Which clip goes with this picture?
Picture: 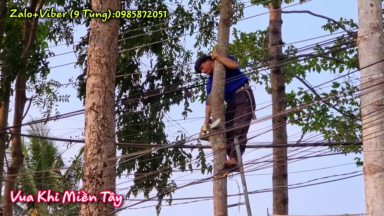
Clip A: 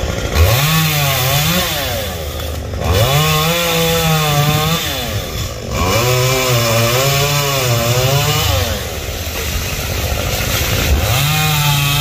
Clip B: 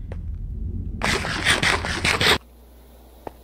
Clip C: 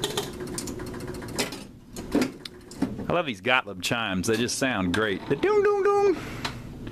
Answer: A